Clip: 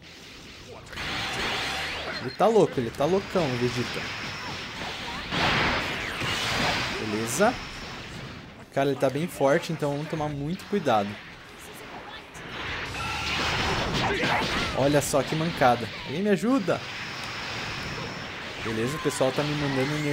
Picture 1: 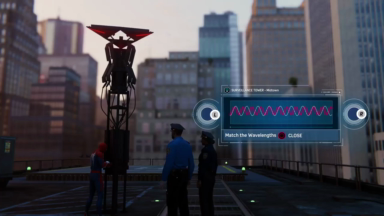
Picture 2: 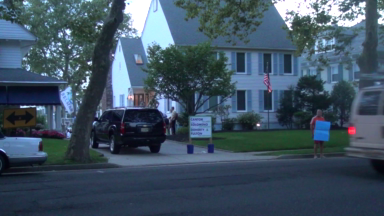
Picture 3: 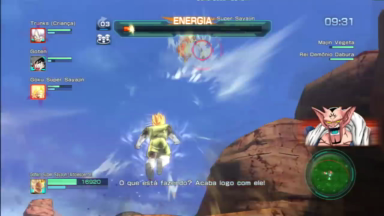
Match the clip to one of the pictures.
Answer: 3